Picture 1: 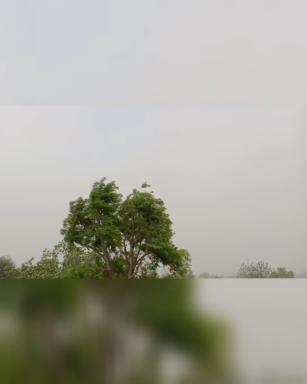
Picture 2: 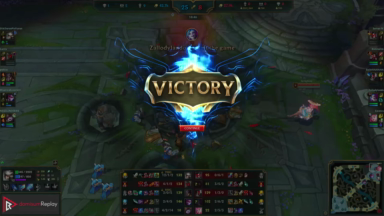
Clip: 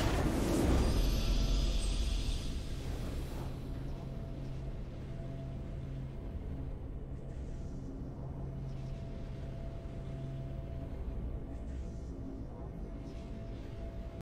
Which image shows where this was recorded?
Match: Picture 2